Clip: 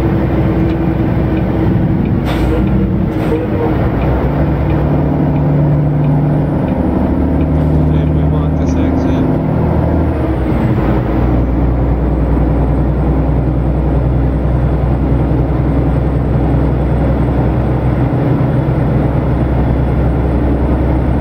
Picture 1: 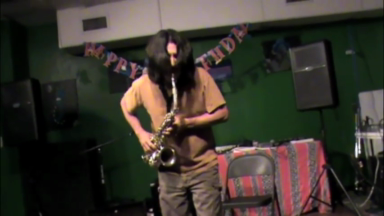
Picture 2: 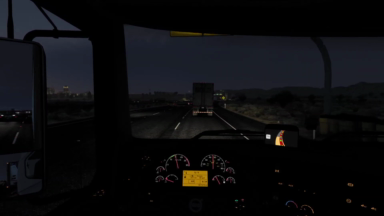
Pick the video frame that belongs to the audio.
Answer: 2